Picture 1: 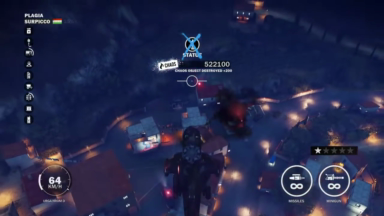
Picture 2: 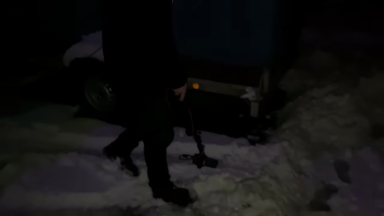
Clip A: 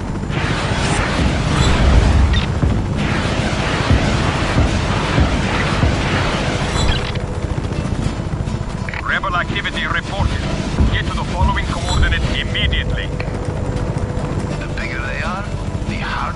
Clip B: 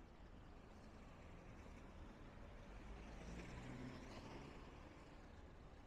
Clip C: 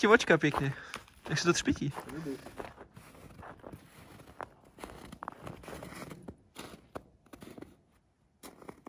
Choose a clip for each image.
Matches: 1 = A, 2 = C